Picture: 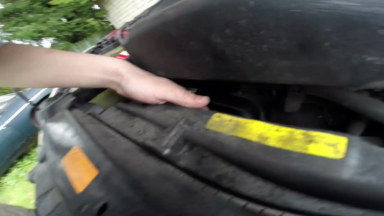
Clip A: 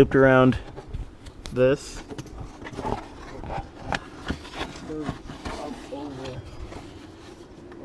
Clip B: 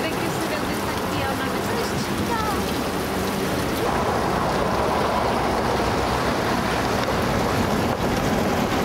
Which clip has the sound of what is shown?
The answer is A